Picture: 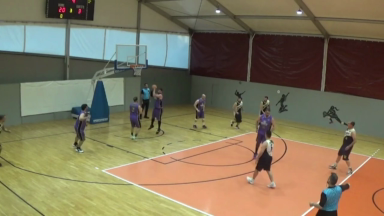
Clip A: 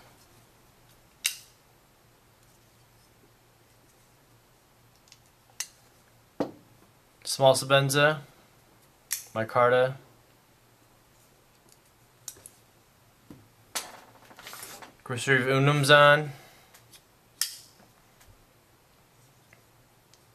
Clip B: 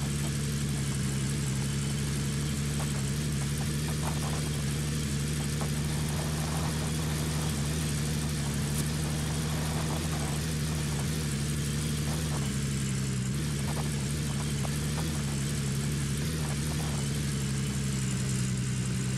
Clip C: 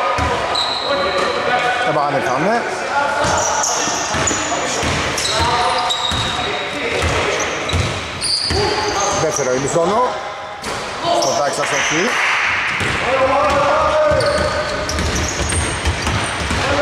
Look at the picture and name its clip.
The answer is C